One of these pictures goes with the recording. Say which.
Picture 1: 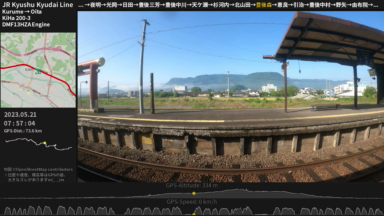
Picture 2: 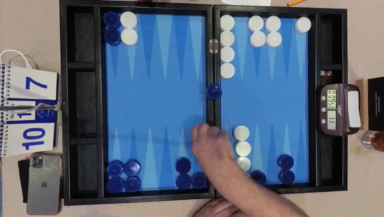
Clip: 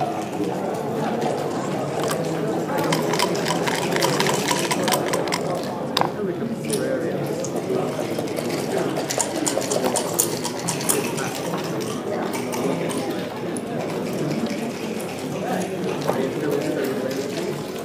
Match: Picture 2